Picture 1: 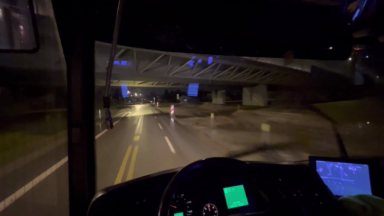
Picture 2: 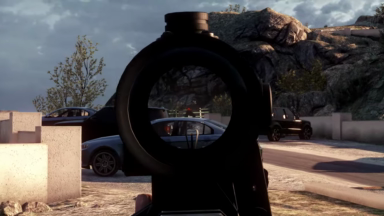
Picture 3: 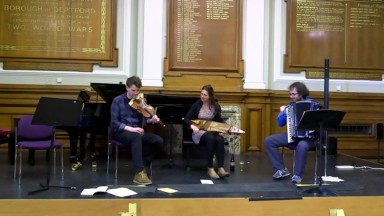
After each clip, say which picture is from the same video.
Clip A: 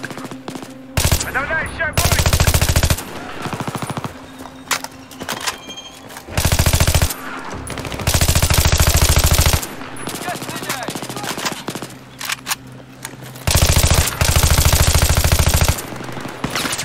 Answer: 2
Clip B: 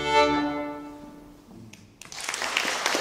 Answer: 3